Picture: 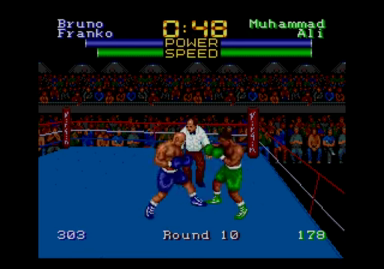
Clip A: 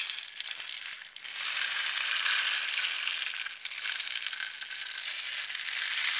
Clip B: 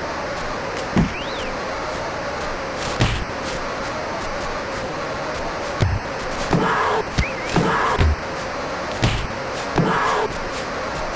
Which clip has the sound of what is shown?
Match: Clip B